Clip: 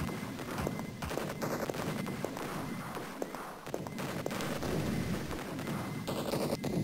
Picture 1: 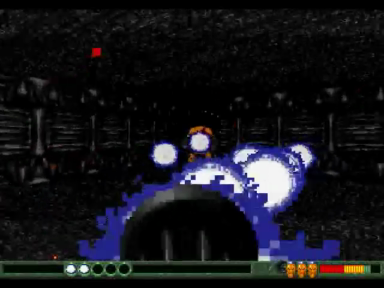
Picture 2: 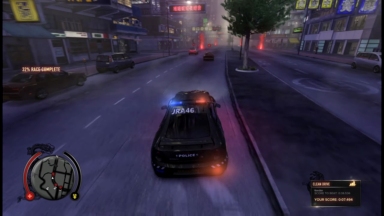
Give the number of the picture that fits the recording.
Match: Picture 1